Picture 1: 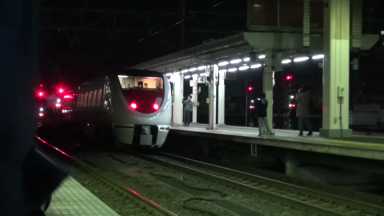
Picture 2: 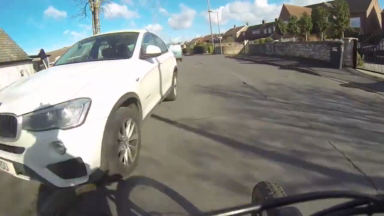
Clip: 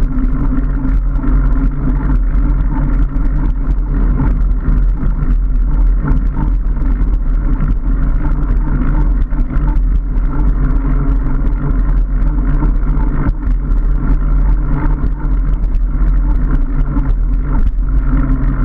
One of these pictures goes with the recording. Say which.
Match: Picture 2